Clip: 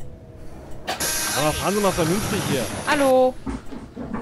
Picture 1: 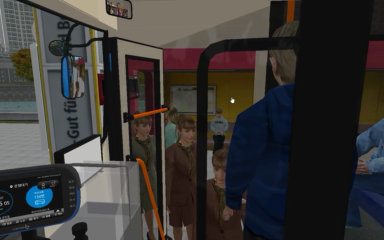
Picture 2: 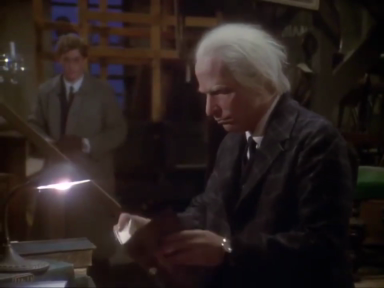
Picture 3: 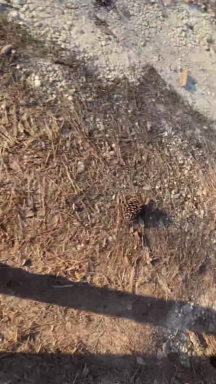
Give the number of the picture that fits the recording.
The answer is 1